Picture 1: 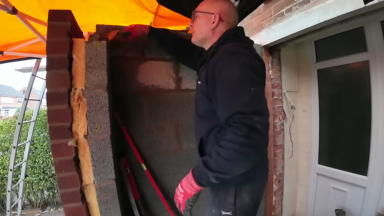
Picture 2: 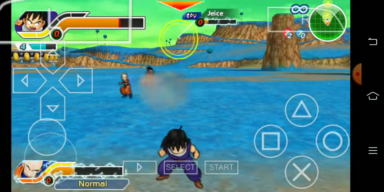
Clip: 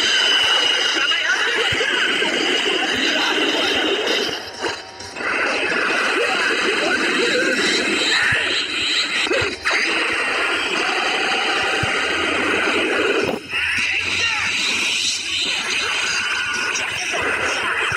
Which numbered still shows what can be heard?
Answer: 2